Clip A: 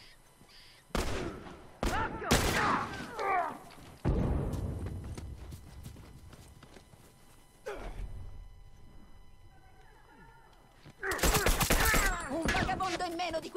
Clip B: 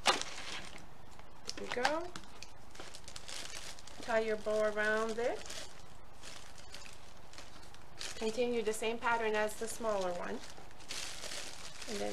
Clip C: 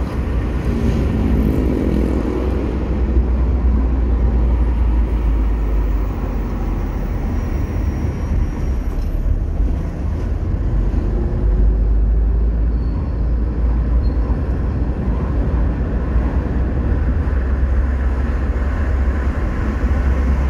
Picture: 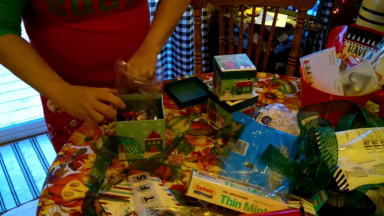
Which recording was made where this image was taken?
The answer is B